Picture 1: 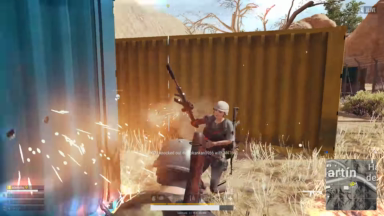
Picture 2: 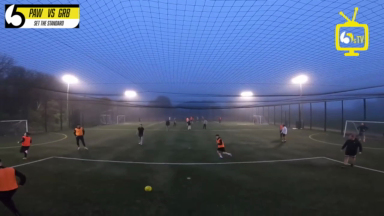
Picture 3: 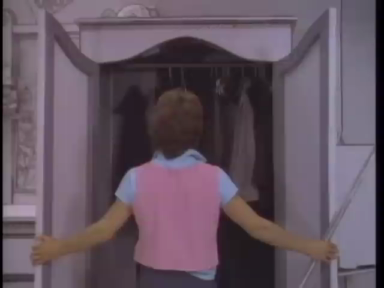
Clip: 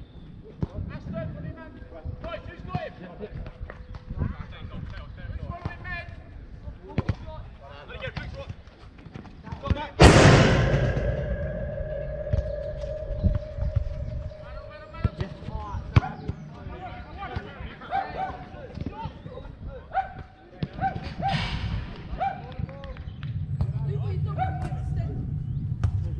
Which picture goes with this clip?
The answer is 2